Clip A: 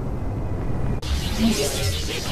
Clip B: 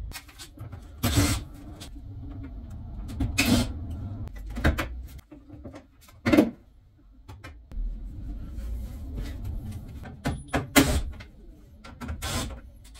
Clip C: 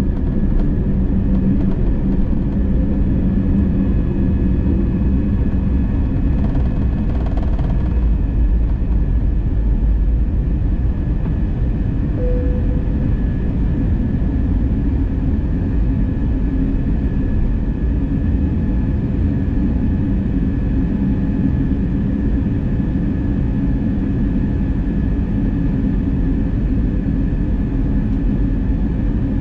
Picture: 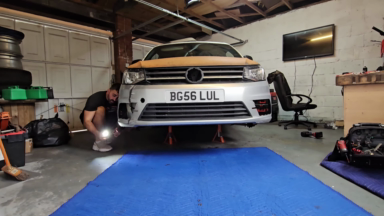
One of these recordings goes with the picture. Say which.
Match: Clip B